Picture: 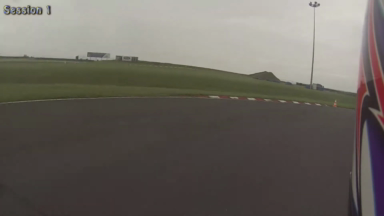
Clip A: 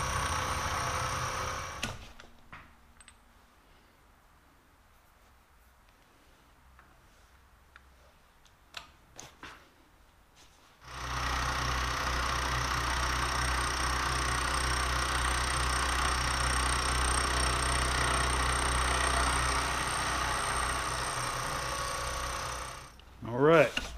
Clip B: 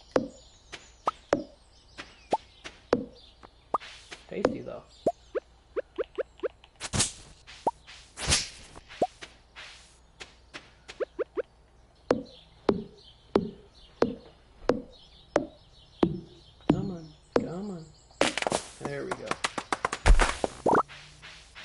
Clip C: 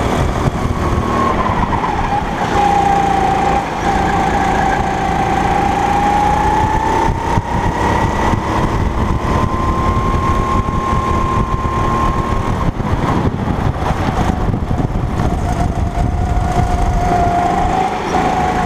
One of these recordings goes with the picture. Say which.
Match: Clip C